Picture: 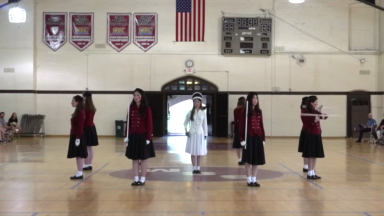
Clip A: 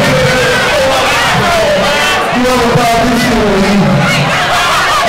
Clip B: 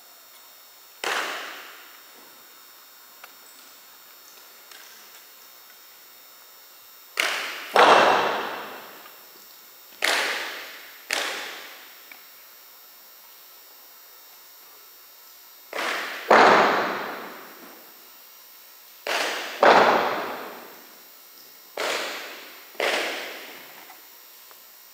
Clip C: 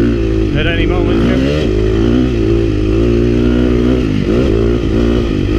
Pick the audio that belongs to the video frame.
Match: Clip B